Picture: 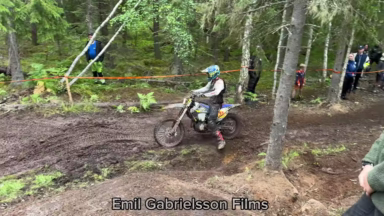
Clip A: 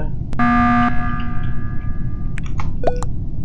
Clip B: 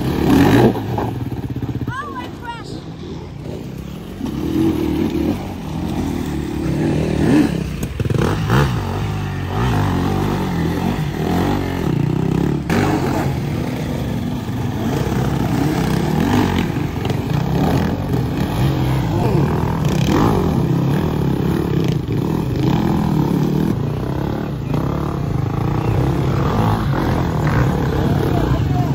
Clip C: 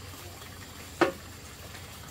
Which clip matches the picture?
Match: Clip B